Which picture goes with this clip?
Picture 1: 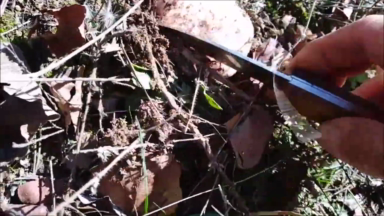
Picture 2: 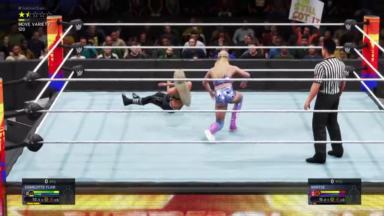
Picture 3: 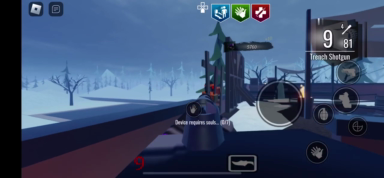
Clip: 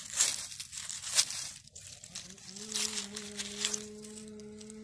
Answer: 1